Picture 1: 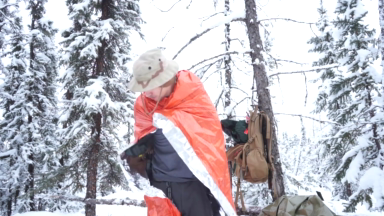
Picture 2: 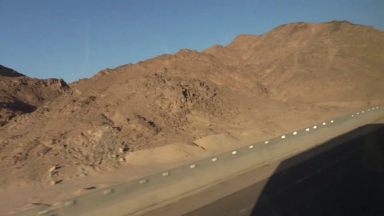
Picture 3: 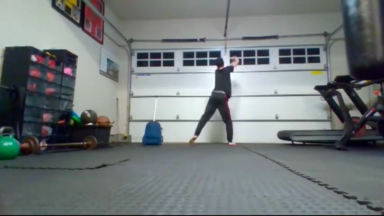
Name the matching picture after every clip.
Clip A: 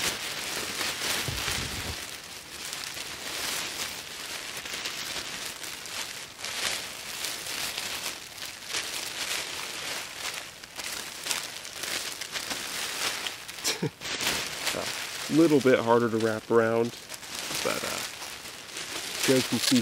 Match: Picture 1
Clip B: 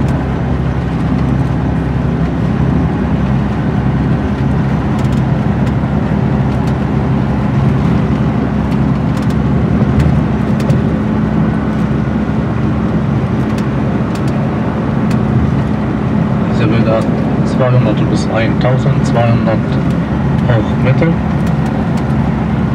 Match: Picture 2